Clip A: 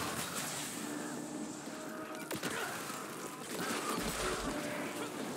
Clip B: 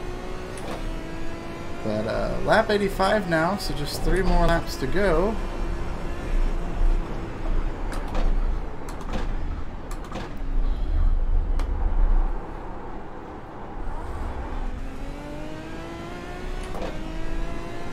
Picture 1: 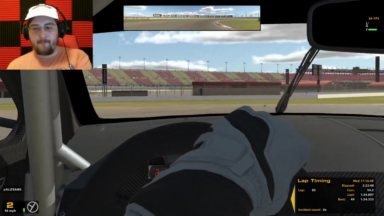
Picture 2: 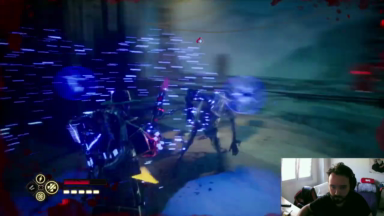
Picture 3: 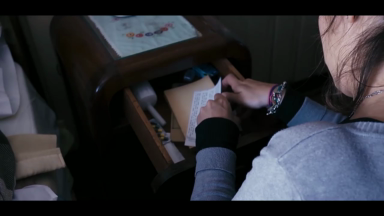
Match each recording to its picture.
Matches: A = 2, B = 1